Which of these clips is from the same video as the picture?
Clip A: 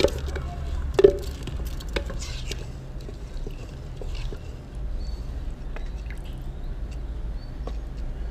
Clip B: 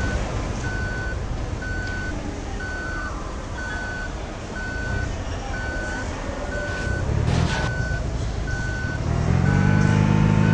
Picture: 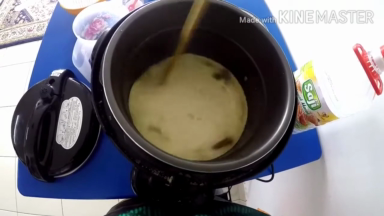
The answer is A